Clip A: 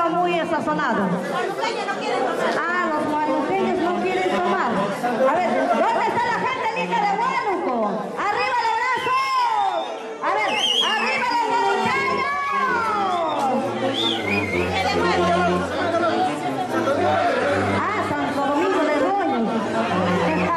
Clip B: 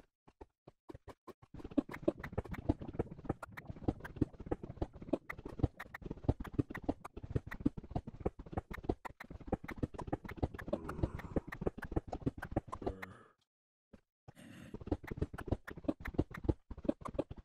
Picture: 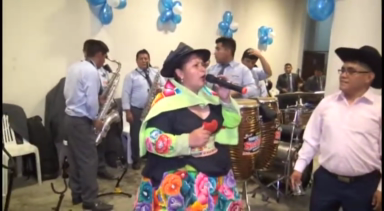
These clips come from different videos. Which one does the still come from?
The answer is A